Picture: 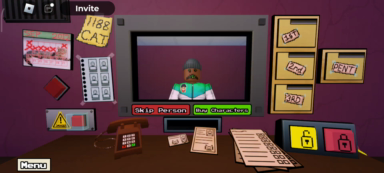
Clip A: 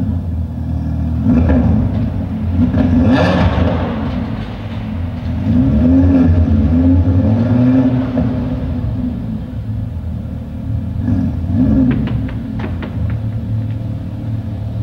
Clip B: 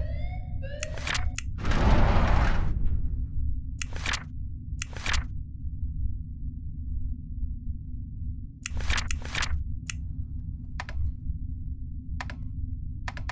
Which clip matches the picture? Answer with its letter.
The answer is B